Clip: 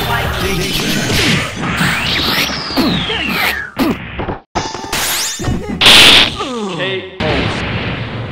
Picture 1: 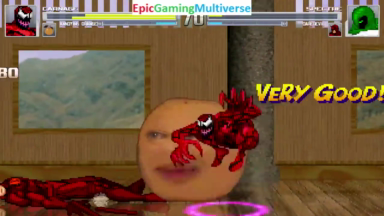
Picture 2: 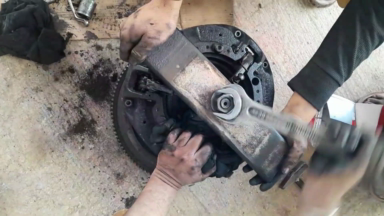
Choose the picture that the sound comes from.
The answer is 1